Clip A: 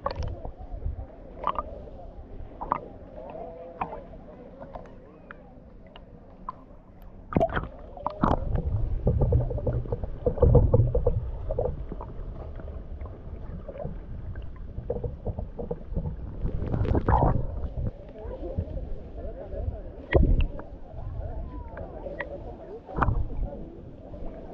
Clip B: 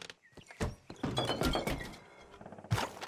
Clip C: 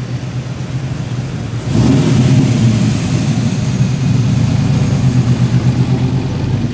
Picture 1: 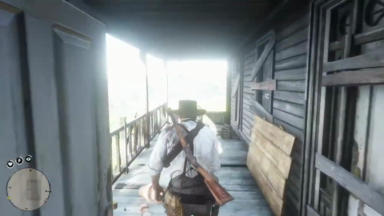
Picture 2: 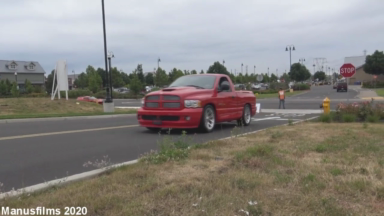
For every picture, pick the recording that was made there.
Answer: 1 B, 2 C